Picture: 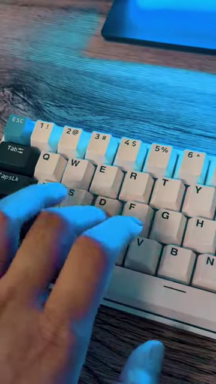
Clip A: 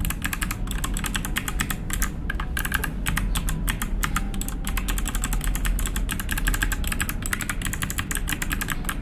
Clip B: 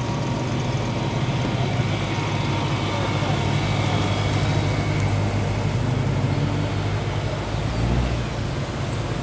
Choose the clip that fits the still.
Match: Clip A